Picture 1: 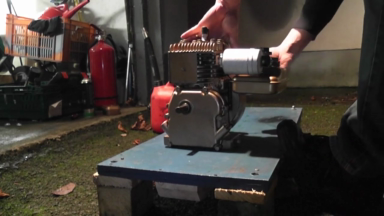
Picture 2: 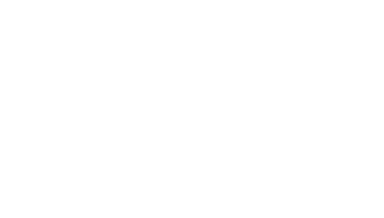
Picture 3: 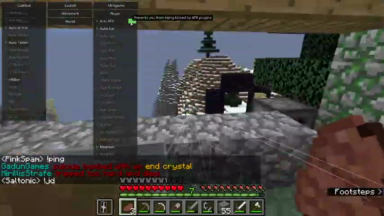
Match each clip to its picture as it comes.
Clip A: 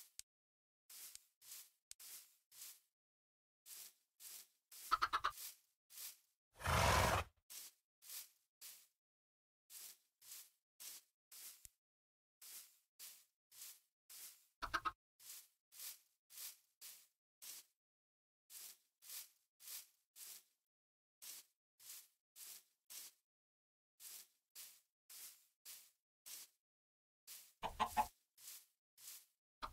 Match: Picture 3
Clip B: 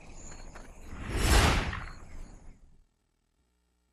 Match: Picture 2